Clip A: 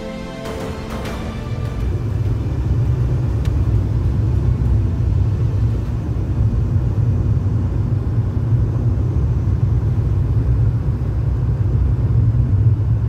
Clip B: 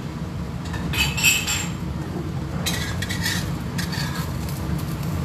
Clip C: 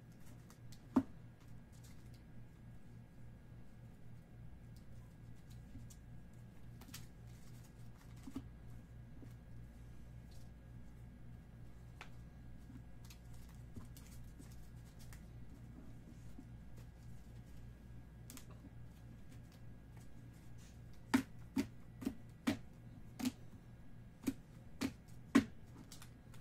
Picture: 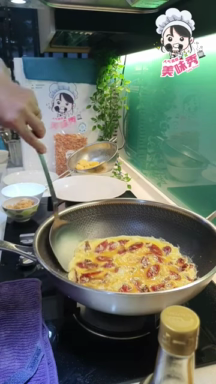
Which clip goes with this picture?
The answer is B